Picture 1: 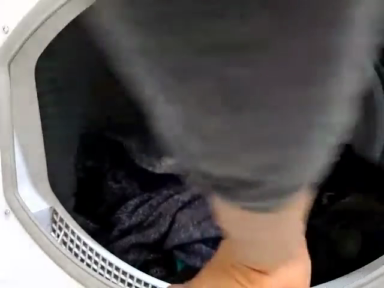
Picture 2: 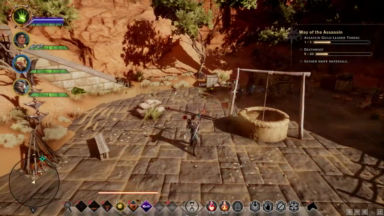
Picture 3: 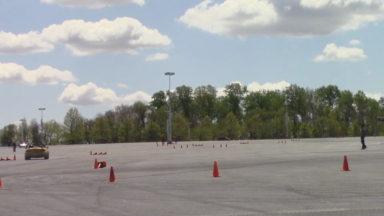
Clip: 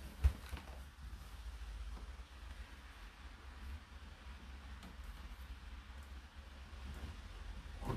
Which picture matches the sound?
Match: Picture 1